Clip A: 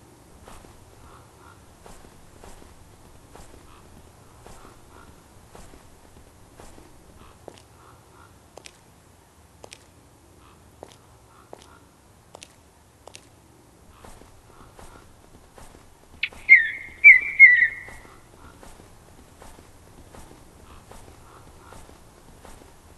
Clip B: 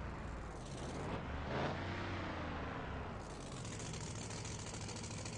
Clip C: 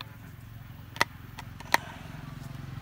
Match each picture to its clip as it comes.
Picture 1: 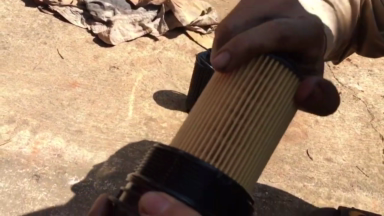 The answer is C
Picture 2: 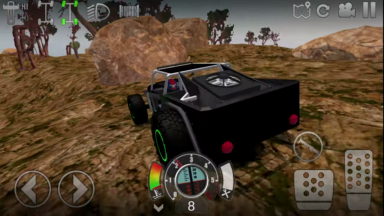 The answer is B